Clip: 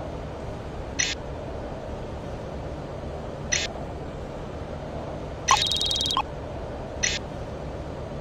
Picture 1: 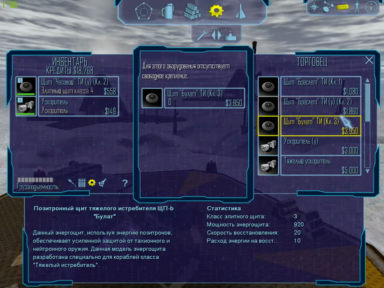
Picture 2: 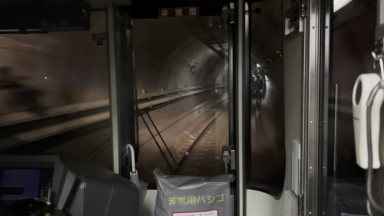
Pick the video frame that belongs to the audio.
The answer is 1